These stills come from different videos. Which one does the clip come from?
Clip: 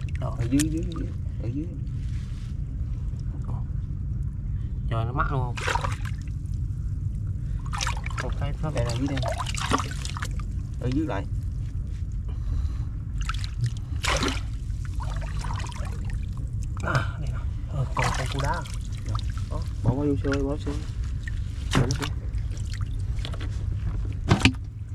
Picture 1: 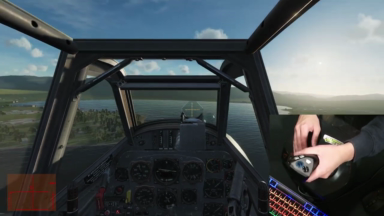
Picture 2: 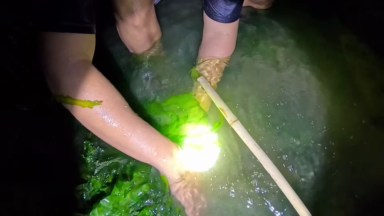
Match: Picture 2